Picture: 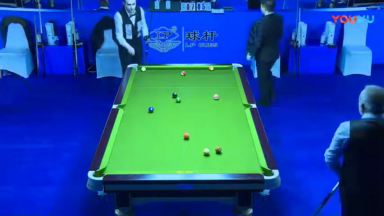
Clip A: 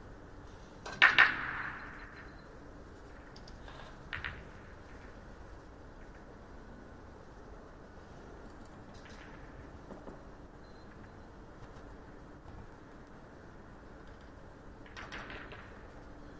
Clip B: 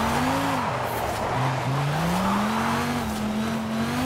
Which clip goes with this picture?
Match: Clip A